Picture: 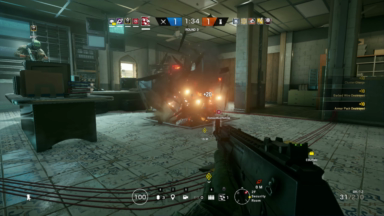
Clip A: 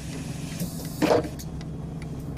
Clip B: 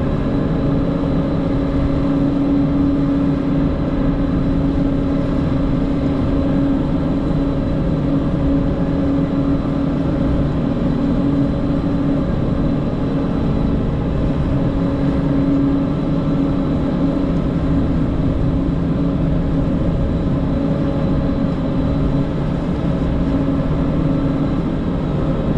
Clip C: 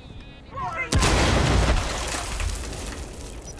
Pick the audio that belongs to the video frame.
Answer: C